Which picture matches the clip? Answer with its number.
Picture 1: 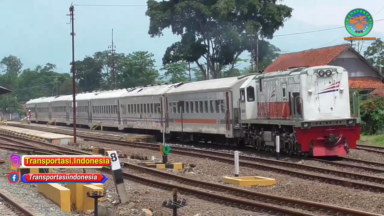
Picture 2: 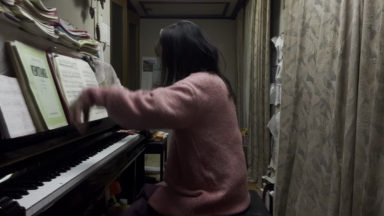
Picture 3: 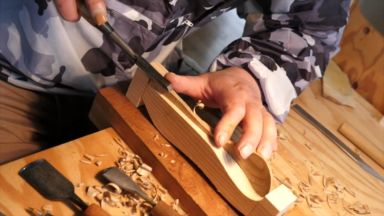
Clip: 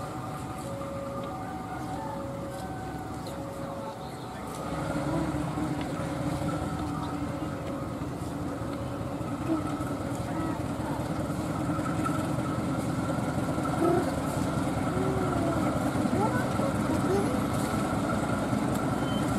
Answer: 1